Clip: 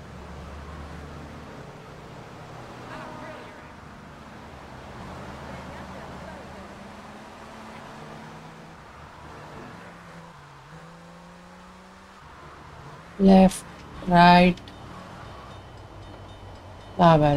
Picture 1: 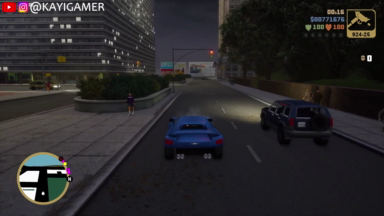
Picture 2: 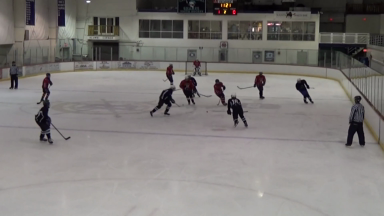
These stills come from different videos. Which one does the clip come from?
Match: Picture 1